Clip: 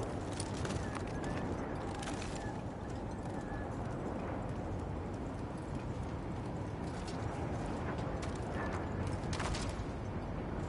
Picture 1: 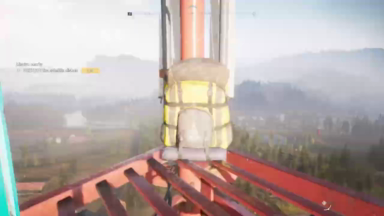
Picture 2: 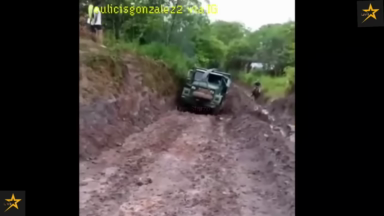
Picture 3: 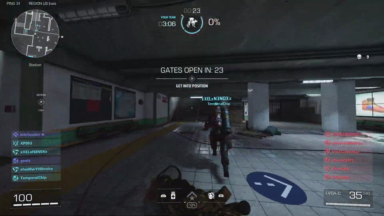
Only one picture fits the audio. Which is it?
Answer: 1